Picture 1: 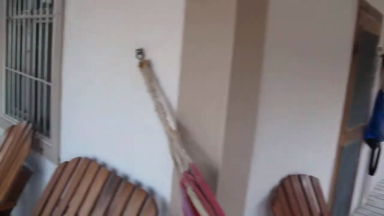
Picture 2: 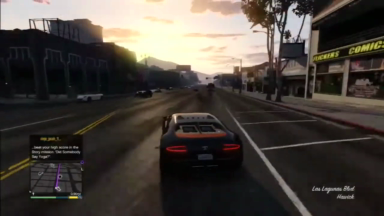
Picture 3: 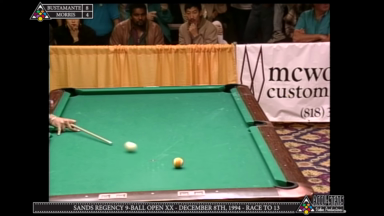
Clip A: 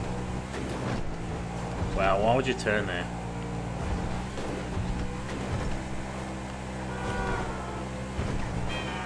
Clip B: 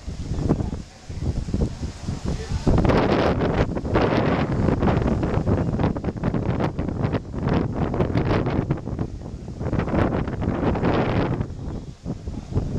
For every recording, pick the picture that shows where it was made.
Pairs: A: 2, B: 1